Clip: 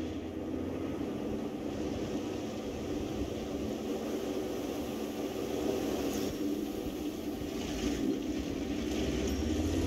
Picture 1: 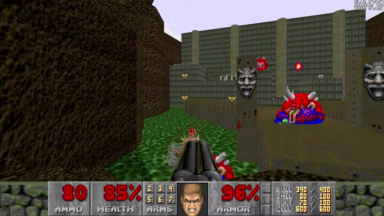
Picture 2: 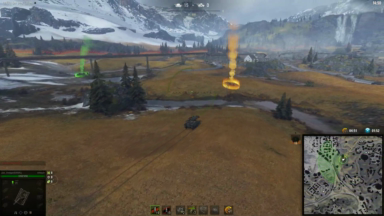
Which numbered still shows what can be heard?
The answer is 2